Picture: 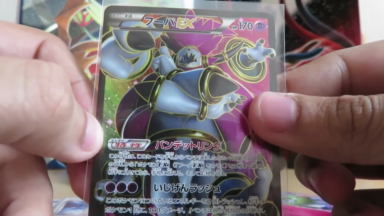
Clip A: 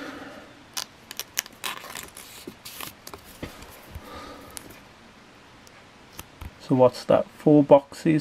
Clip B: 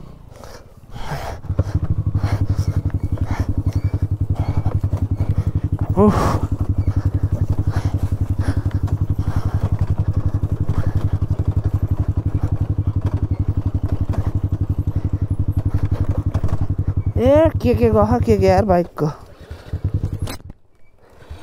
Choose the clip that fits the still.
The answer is A